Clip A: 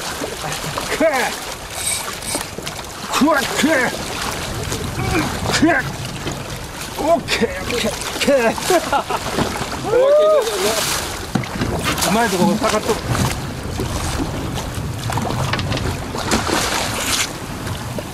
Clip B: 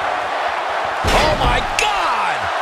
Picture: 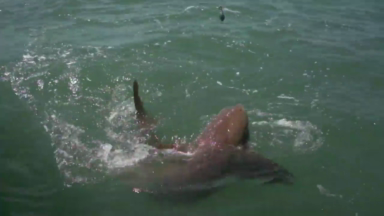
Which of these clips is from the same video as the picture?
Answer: A